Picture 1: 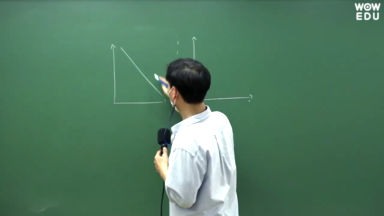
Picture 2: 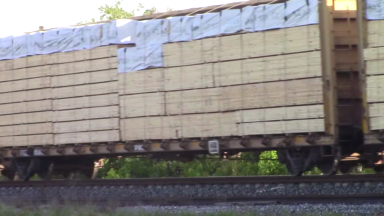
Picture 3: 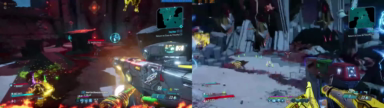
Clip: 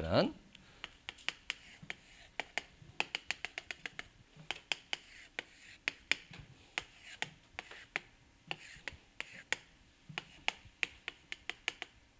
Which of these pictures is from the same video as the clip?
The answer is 1